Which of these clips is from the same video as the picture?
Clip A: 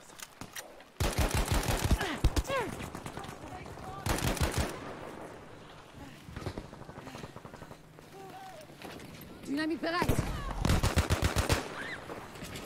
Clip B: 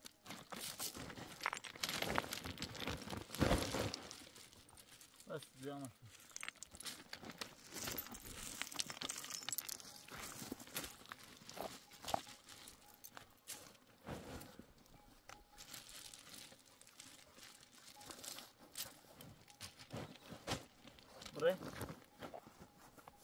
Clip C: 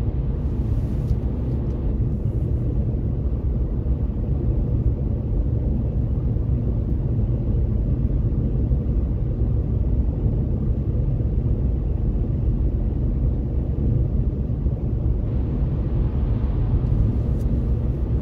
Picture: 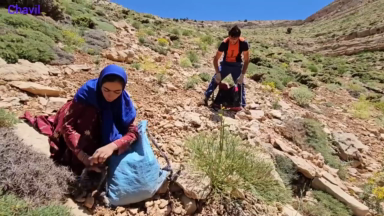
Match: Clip B